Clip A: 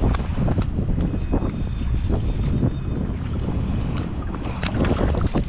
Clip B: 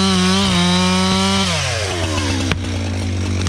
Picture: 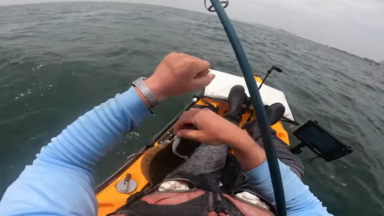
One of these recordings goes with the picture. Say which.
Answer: A